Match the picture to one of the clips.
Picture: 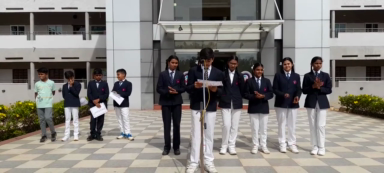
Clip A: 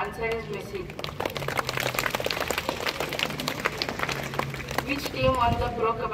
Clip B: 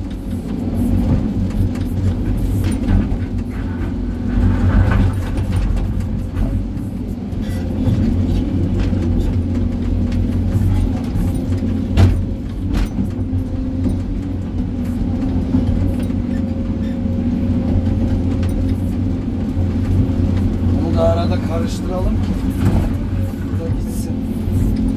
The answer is A